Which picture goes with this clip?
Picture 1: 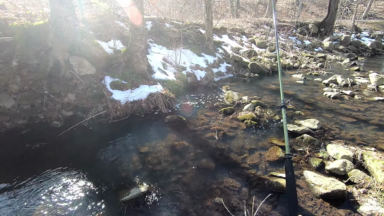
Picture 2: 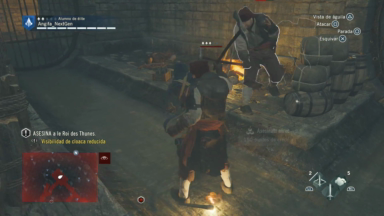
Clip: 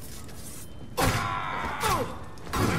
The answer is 2